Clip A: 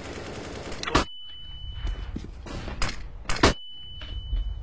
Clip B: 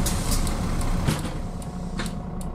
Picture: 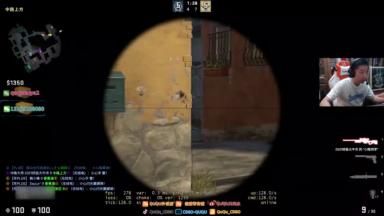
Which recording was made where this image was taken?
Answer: A